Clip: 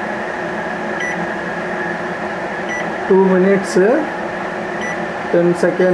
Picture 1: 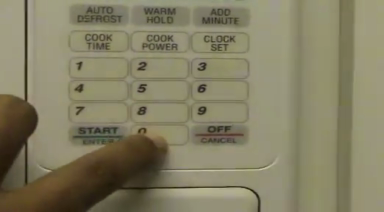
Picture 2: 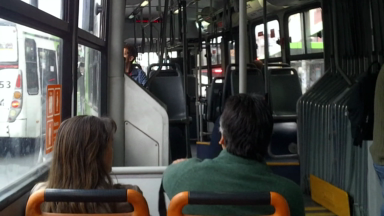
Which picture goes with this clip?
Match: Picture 1